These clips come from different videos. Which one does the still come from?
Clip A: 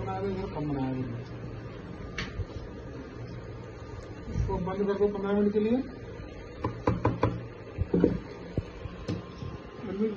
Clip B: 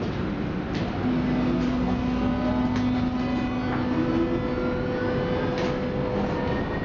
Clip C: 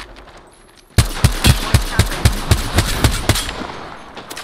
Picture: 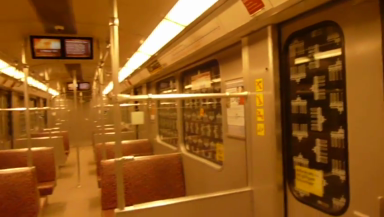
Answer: B